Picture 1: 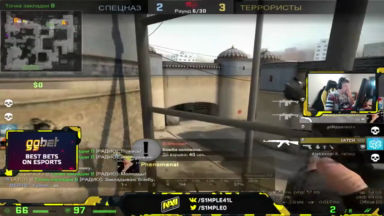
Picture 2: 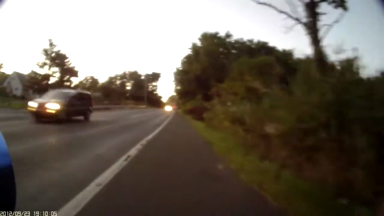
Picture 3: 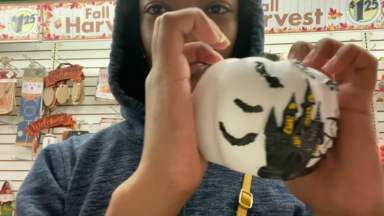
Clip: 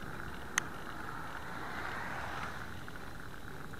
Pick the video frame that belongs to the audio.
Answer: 2